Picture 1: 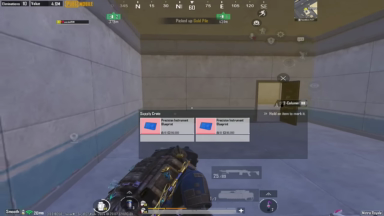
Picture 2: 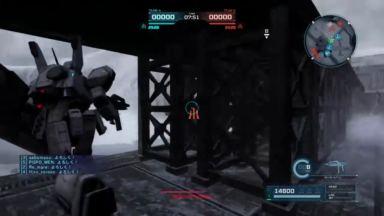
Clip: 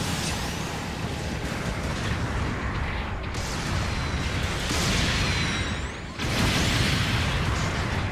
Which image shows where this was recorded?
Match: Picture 2